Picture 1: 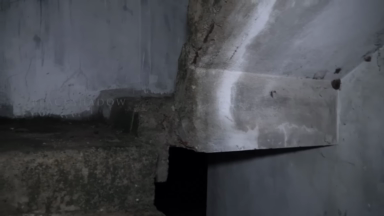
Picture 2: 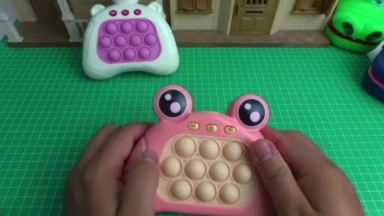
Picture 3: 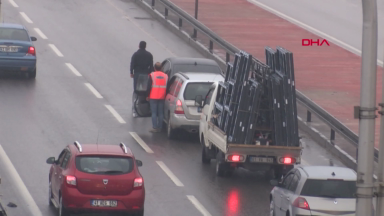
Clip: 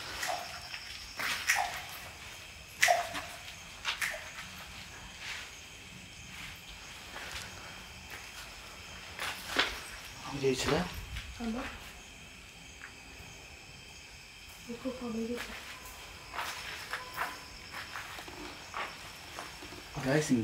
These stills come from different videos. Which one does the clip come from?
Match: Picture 1